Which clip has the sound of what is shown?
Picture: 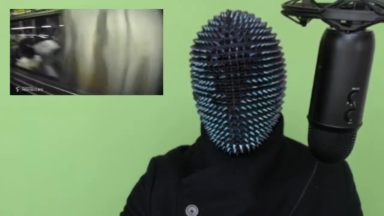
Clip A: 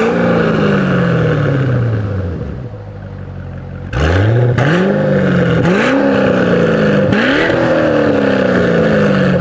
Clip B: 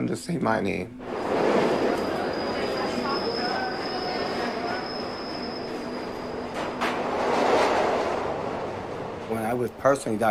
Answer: B